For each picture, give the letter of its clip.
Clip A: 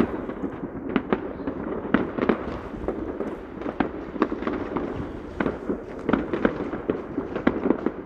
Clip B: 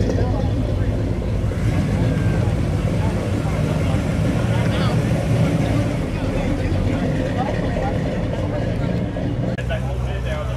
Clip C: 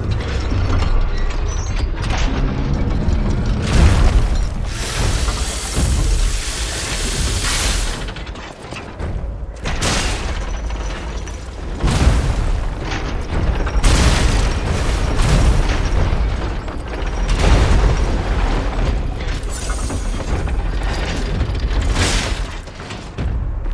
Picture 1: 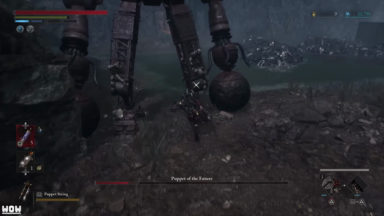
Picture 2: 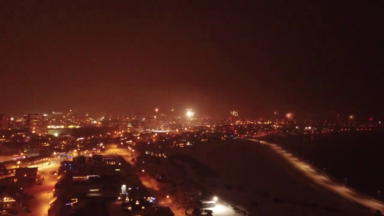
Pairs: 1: C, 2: A